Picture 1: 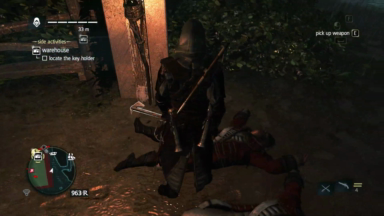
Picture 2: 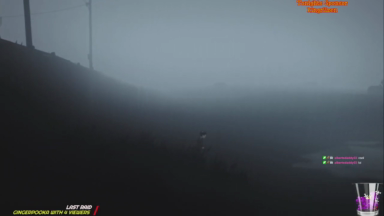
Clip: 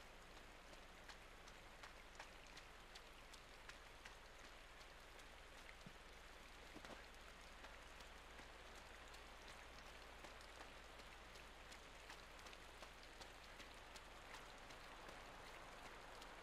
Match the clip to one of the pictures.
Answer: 2